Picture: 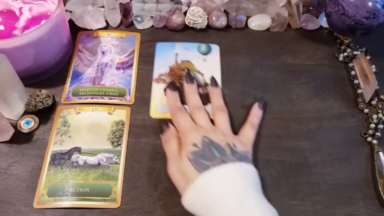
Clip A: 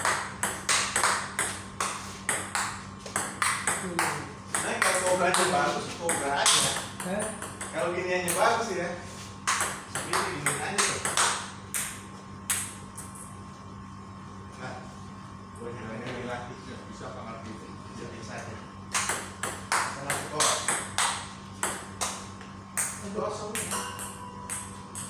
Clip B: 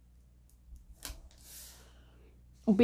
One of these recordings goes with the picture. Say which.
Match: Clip B